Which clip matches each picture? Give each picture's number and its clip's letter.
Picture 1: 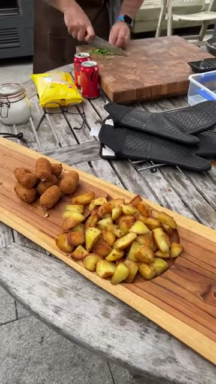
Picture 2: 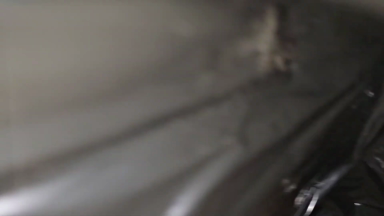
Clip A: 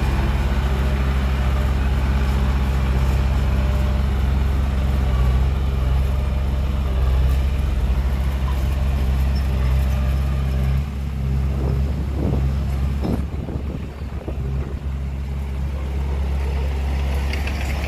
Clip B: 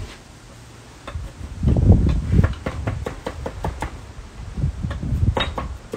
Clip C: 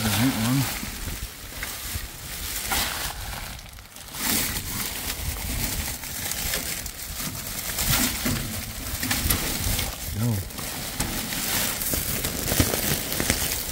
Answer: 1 B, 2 C